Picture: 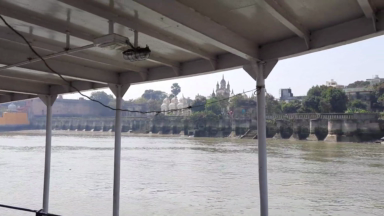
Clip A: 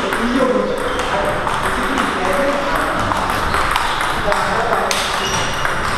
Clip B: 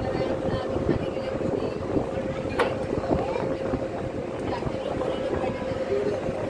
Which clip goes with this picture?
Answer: B